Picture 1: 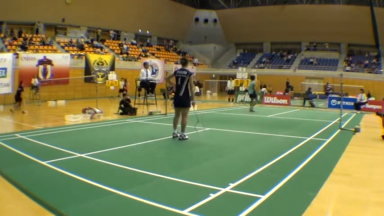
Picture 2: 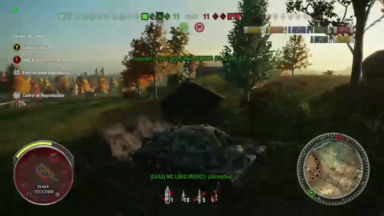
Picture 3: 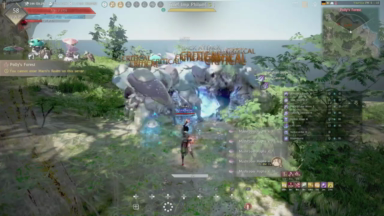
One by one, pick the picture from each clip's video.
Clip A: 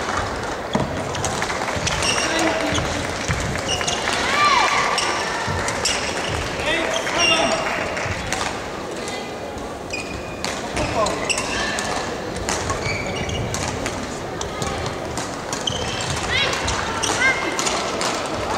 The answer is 1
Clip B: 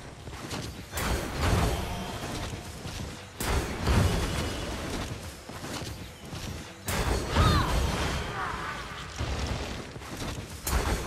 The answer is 3